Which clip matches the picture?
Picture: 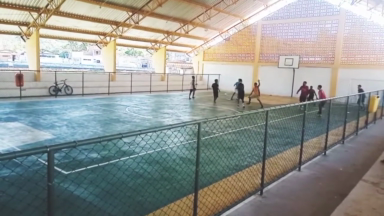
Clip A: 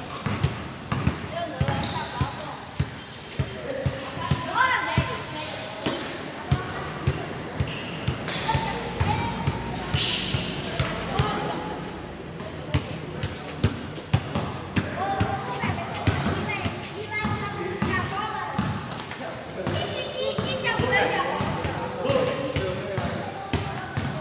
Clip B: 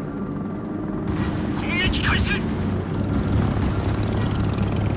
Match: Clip A